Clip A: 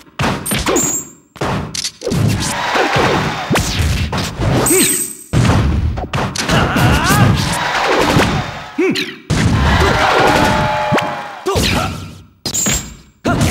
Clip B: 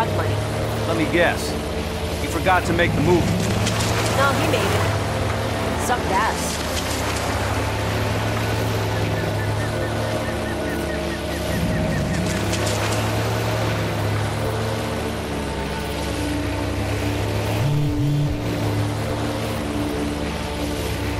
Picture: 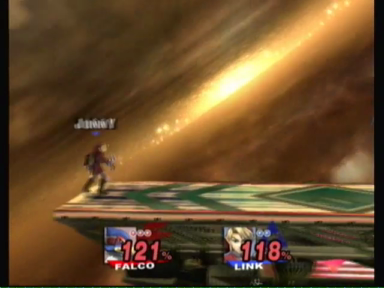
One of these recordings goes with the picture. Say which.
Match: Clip A